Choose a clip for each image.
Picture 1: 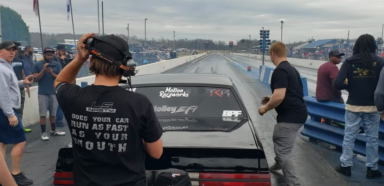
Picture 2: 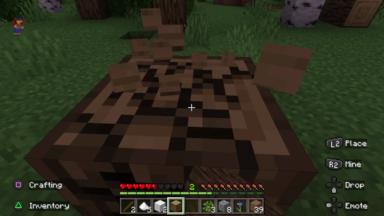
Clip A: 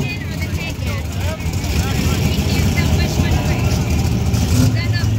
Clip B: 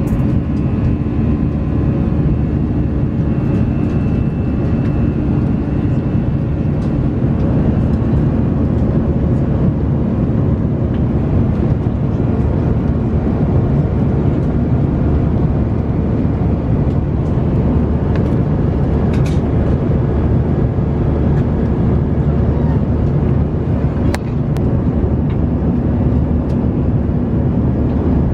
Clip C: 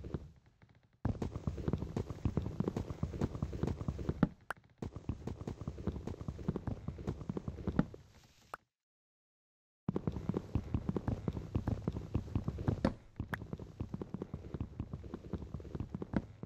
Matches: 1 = A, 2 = C